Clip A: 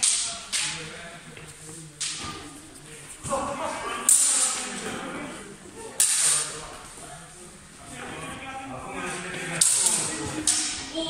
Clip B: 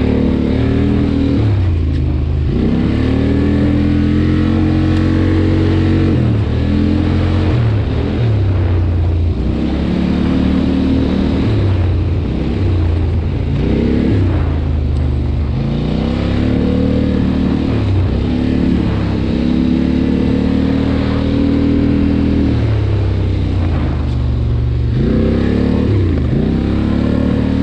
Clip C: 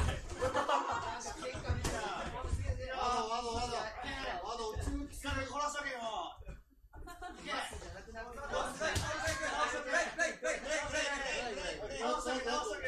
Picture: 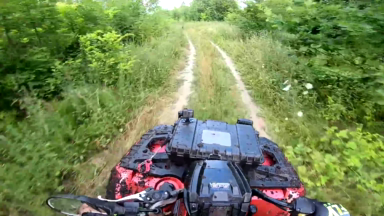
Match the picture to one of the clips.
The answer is B